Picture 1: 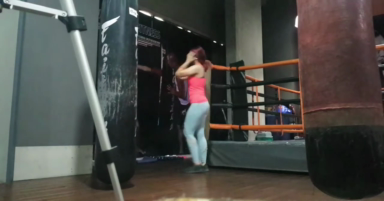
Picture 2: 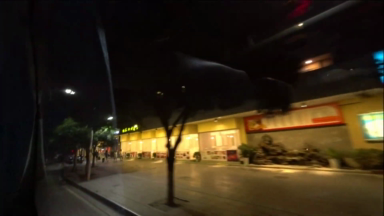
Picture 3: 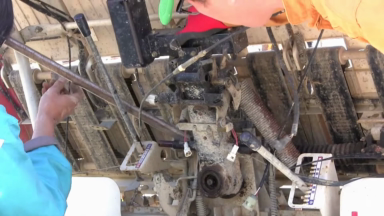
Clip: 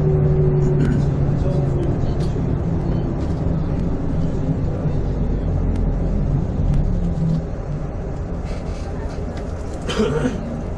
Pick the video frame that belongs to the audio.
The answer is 2